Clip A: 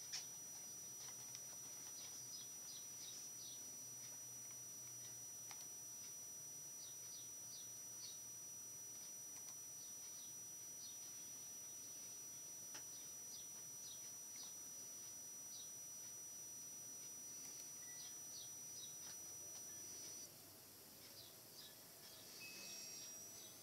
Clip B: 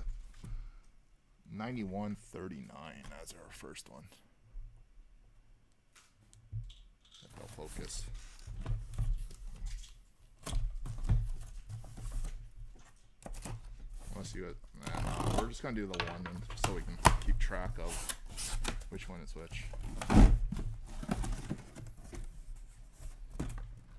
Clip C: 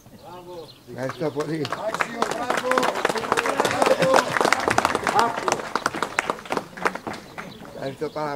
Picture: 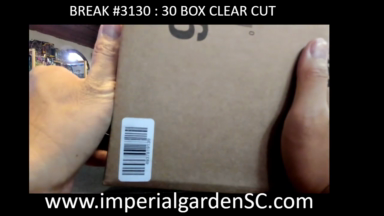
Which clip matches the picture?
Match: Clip B